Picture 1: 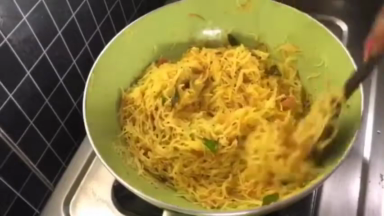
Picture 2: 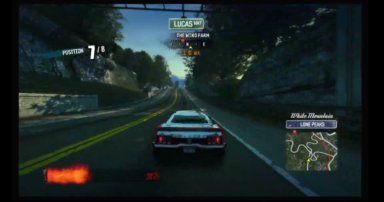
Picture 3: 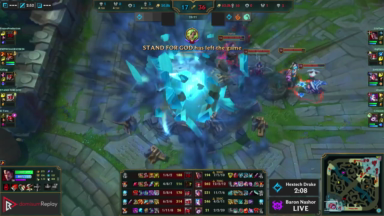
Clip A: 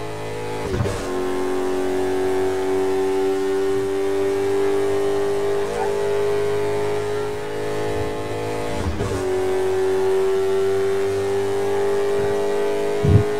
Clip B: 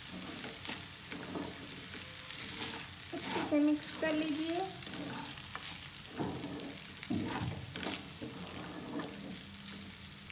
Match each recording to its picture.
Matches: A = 2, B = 1